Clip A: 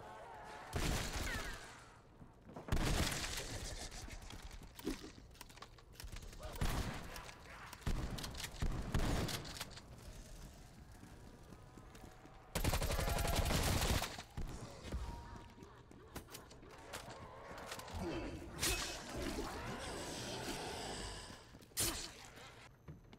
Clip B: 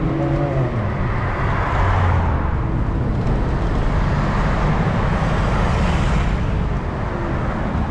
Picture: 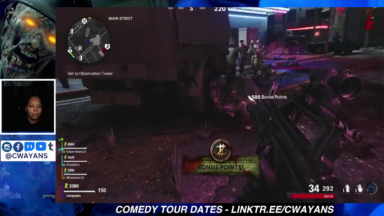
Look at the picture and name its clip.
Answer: A